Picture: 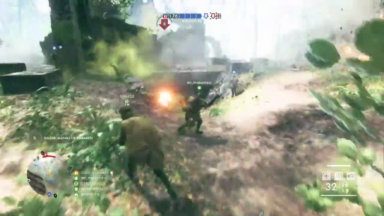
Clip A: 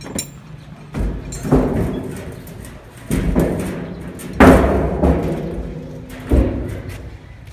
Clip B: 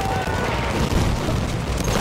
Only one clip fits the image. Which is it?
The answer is B